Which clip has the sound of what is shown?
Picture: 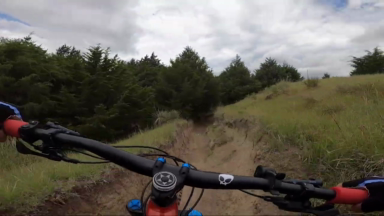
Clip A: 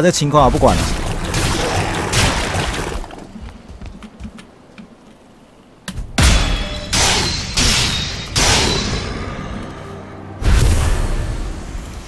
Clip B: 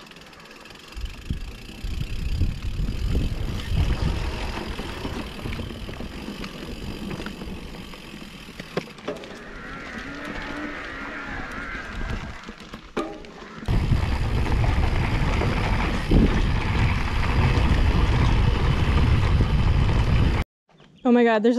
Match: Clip B